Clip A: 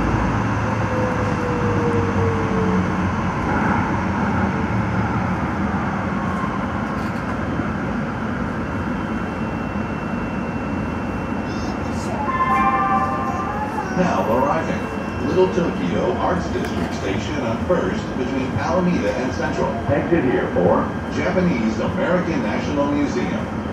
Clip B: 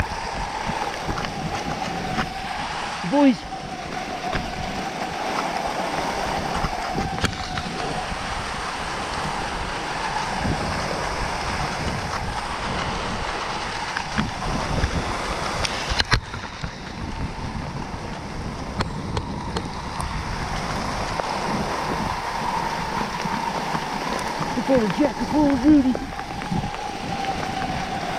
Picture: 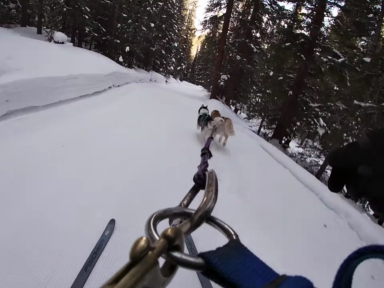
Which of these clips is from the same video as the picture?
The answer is B